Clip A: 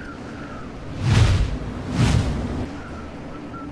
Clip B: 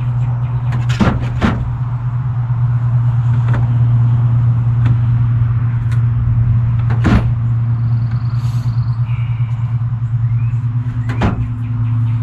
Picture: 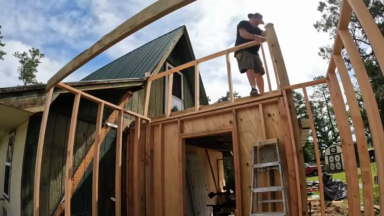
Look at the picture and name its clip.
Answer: B